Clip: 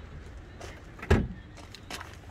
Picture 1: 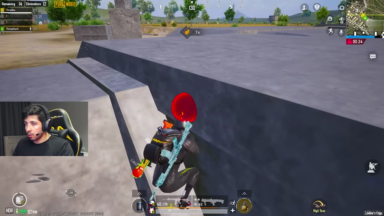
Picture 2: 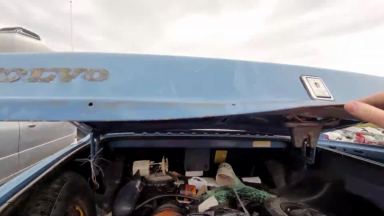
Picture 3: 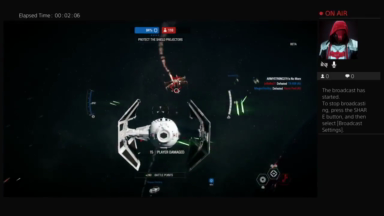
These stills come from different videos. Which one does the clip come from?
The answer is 2